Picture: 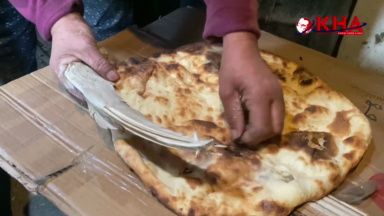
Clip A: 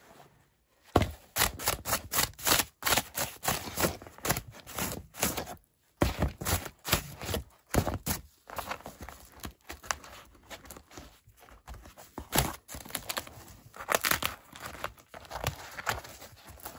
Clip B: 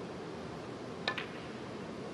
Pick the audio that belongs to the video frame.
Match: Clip A